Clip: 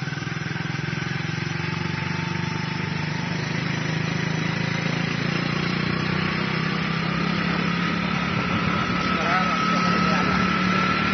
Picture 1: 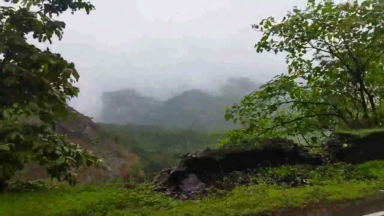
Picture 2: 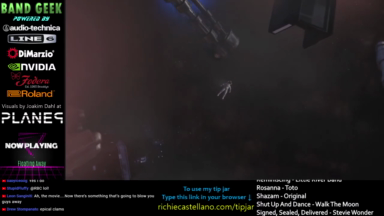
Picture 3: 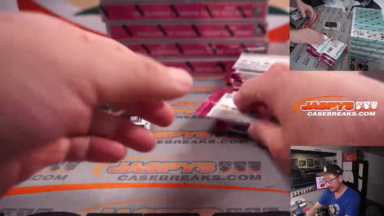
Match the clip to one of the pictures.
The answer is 1